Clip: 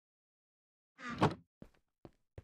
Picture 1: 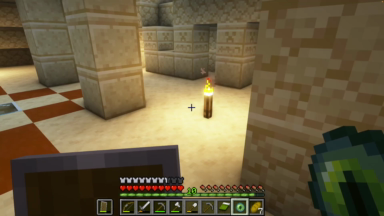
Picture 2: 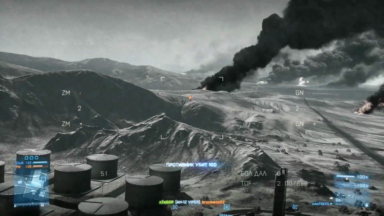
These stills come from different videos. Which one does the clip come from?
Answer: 1